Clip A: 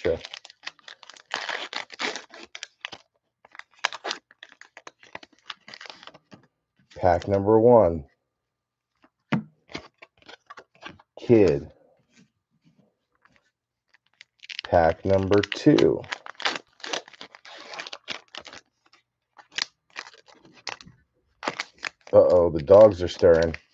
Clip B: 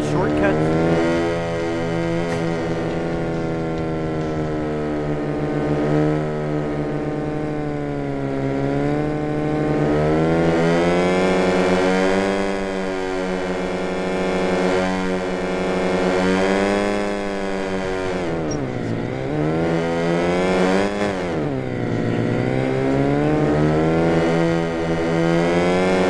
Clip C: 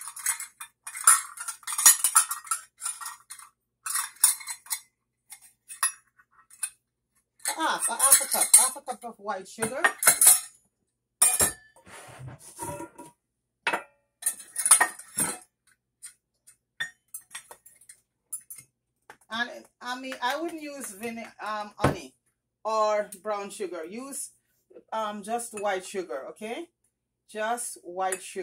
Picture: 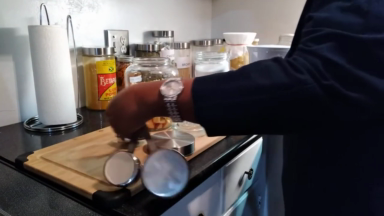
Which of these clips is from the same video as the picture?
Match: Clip C